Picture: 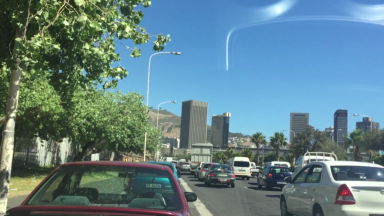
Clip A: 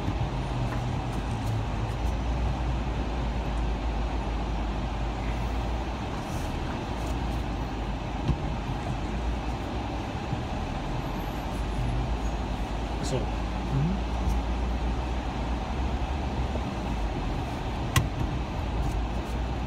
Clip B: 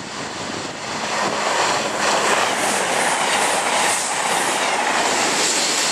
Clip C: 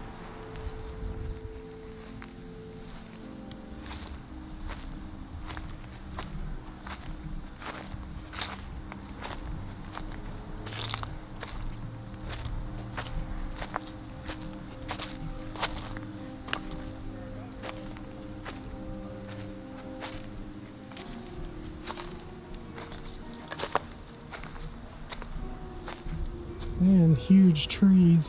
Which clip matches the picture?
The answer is A